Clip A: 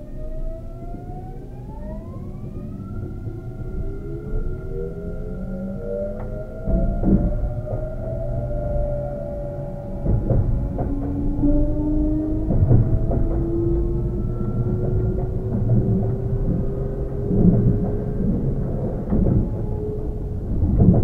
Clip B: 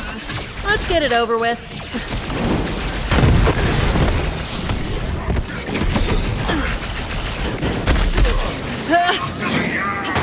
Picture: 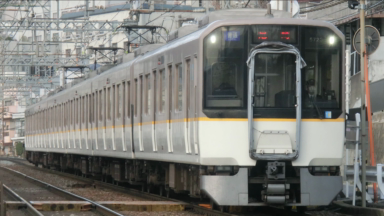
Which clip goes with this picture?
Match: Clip A